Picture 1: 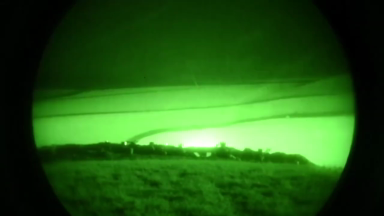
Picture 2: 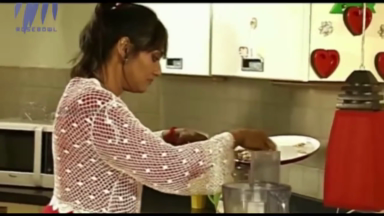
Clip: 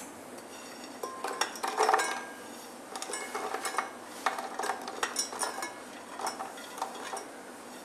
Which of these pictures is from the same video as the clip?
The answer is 2